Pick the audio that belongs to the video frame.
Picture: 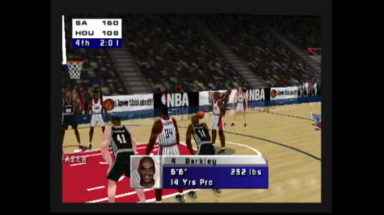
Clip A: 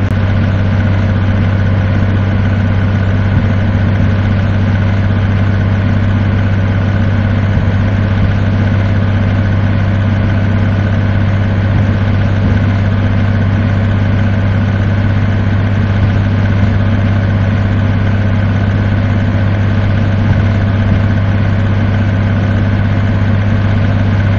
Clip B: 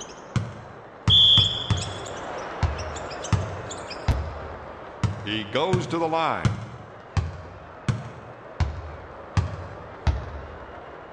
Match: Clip B